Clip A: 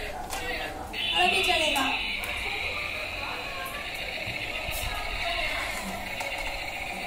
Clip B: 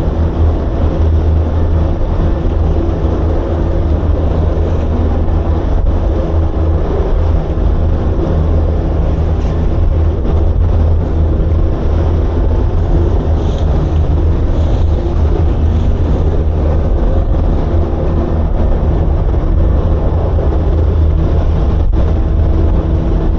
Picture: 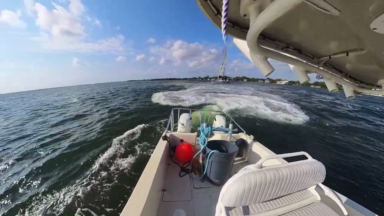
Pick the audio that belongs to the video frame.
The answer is B